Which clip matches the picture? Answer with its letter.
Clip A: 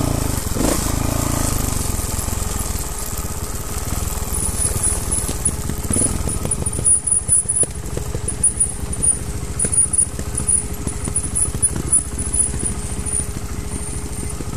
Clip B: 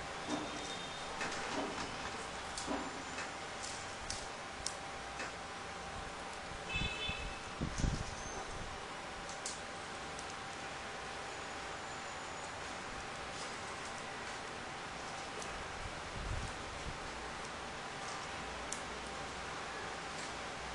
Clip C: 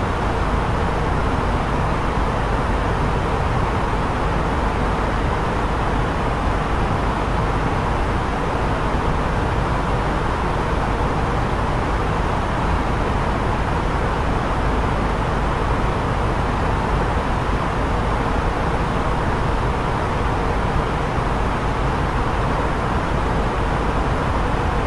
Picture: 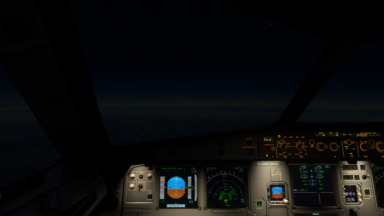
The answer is C